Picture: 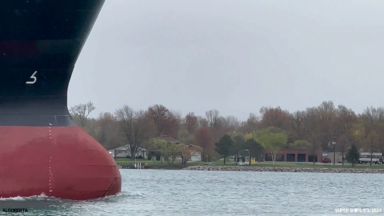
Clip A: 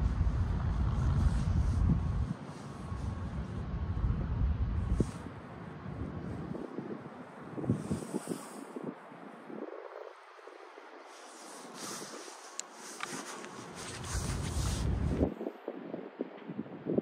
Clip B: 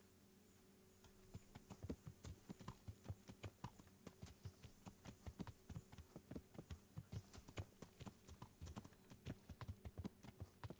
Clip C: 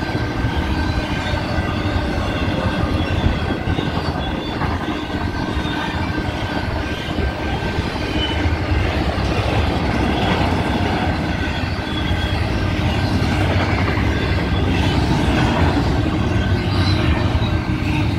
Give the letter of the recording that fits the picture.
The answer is A